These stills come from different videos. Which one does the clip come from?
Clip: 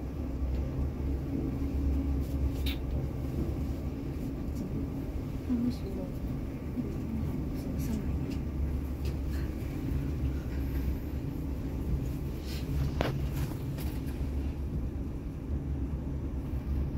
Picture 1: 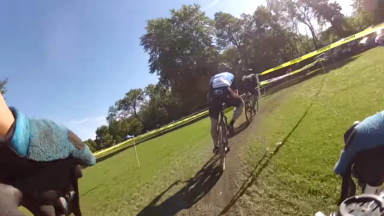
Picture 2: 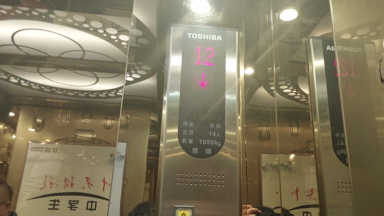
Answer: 2